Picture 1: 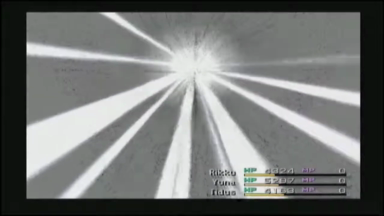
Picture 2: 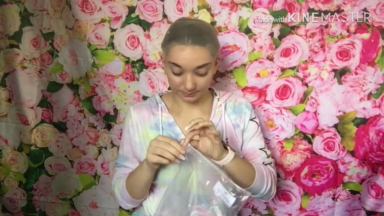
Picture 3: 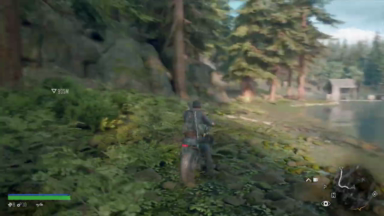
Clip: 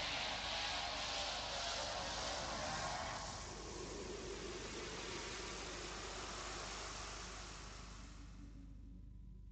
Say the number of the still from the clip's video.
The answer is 1